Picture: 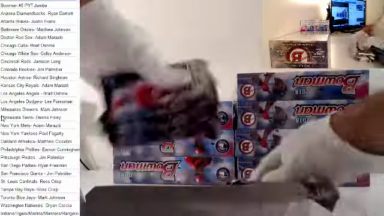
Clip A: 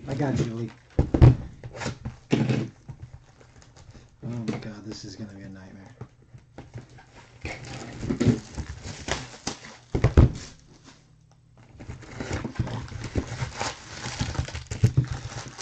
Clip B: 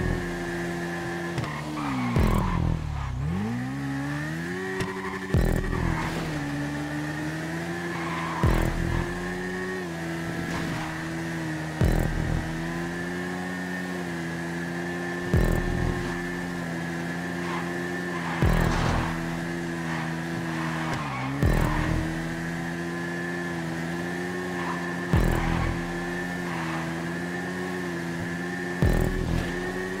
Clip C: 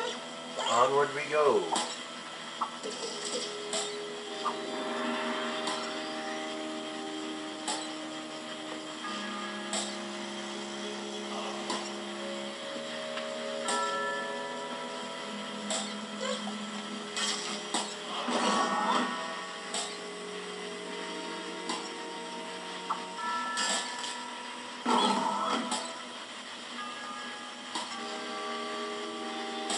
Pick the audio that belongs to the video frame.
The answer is A